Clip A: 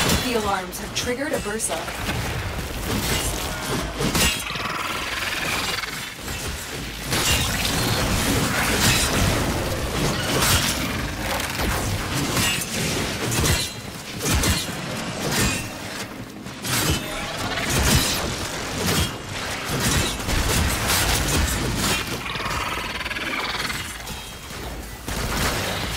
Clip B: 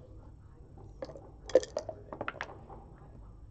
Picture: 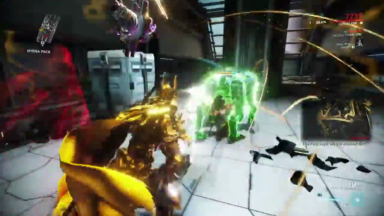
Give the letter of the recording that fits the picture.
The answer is A